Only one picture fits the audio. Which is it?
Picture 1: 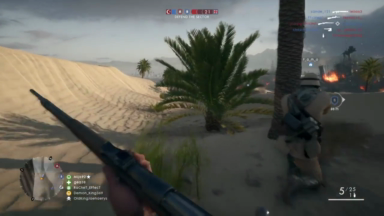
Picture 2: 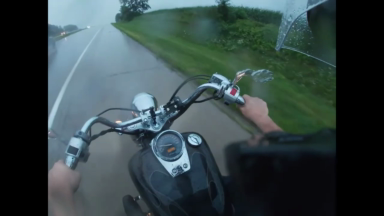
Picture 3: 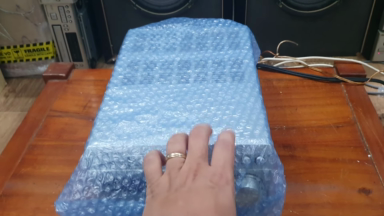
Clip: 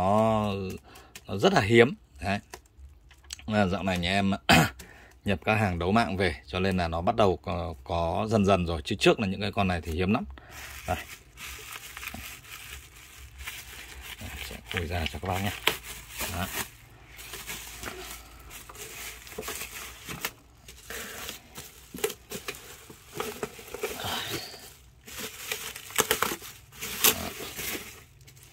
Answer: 3